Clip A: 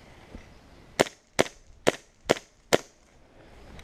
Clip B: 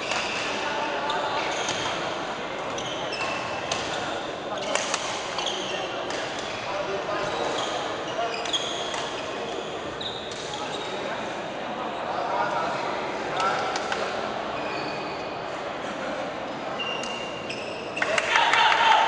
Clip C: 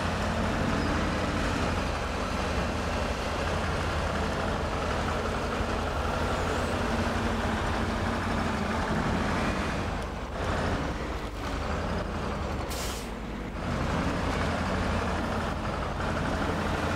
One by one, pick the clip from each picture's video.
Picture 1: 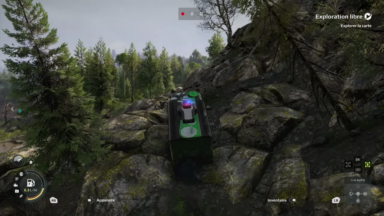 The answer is C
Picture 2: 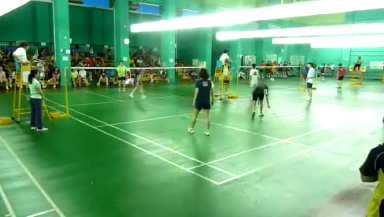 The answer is B